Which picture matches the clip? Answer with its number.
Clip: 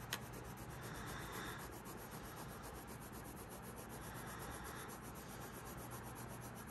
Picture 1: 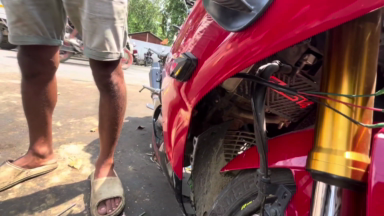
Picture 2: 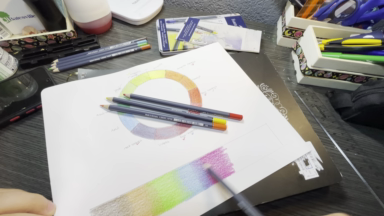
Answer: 2